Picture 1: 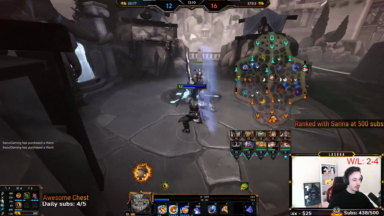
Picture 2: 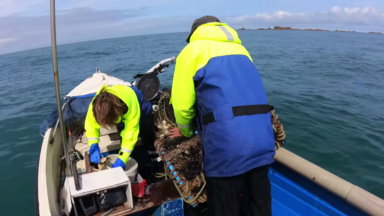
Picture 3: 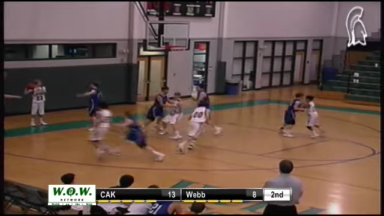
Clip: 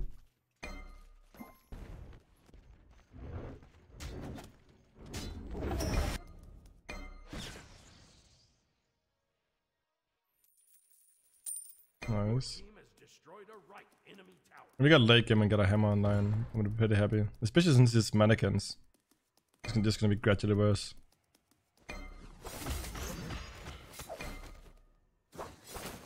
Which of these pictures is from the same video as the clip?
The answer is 1